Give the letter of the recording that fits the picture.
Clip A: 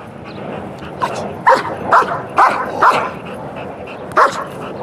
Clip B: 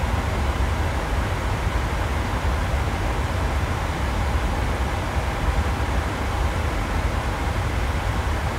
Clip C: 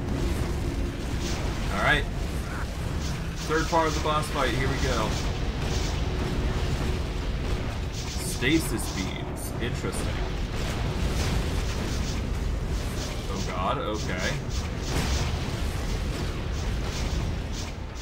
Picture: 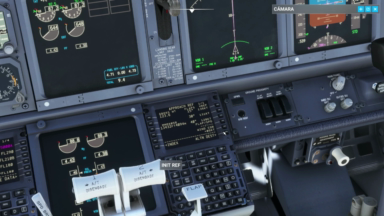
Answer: B